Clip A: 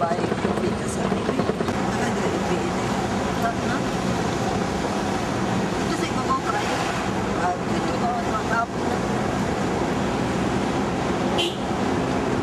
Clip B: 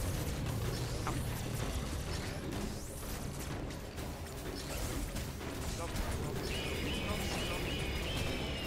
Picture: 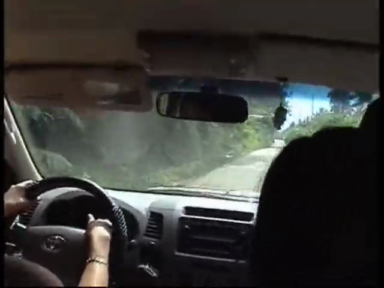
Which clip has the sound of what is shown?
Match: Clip A